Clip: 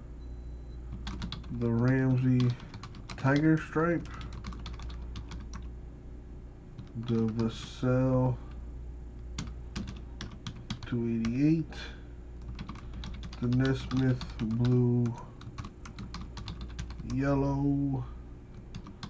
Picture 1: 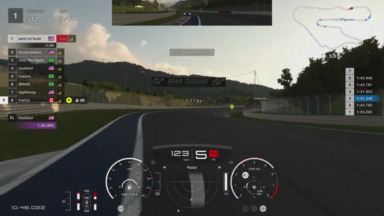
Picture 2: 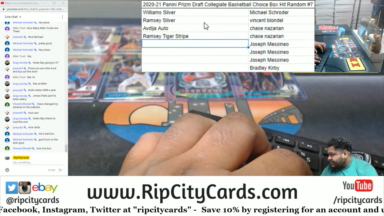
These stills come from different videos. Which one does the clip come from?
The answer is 2